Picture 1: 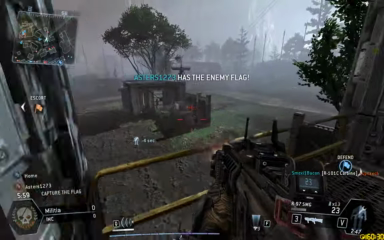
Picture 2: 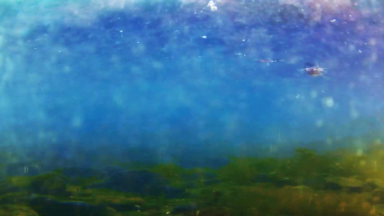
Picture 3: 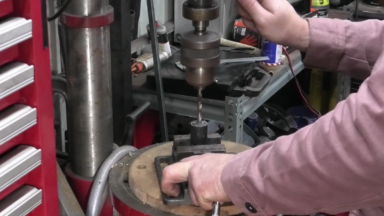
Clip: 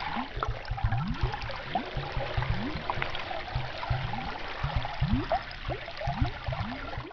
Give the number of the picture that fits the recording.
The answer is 2